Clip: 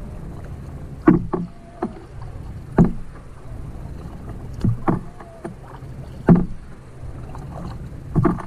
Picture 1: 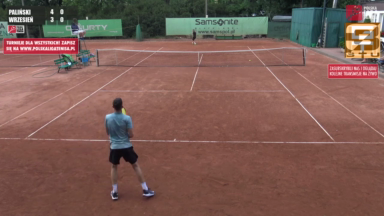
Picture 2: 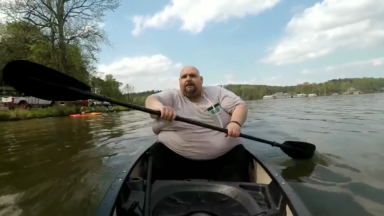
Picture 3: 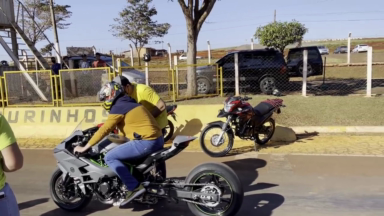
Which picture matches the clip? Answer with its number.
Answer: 2